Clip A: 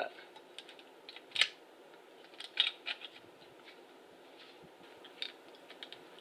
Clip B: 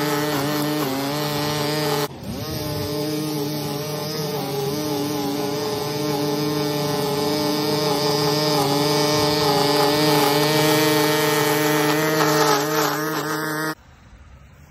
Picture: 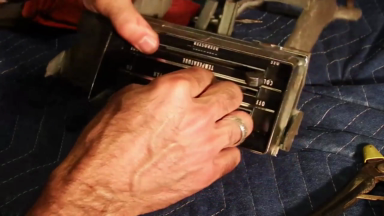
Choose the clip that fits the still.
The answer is A